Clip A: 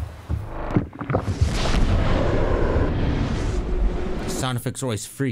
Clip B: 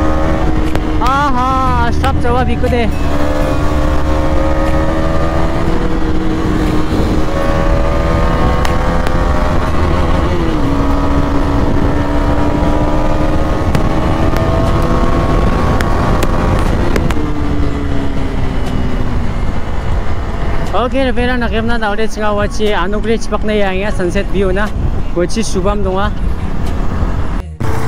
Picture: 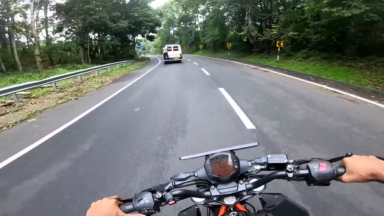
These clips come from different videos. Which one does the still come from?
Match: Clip B